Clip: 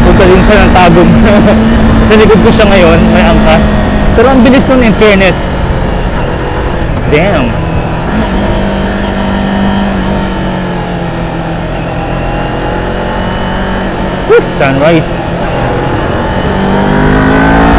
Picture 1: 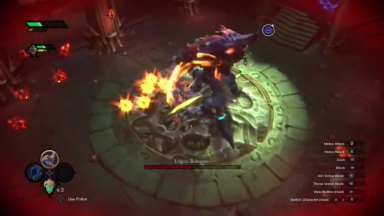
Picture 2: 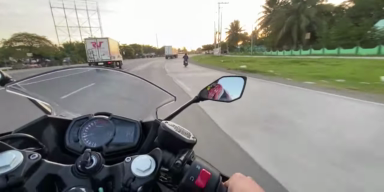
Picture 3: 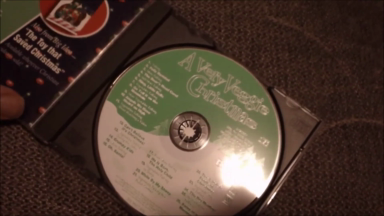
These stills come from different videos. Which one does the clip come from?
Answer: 2